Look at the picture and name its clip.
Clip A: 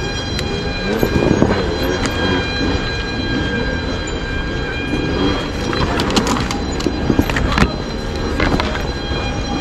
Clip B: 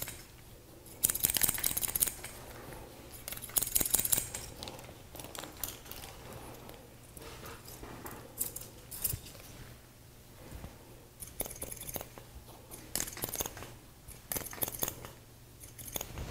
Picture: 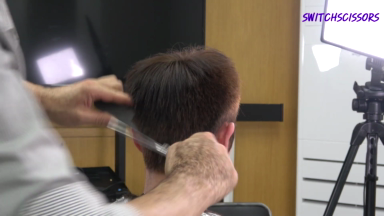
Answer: B